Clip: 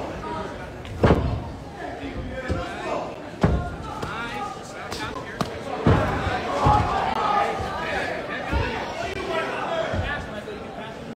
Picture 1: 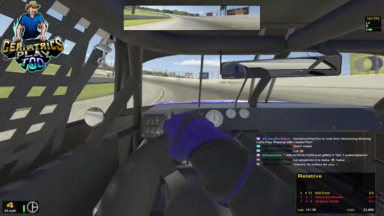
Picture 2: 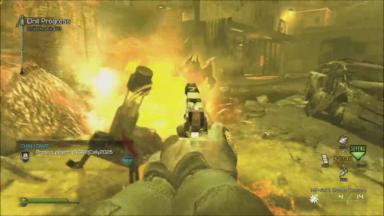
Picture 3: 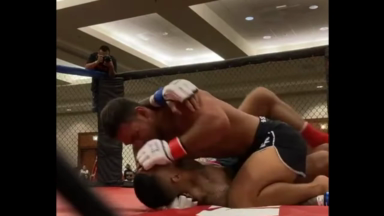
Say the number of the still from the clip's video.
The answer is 3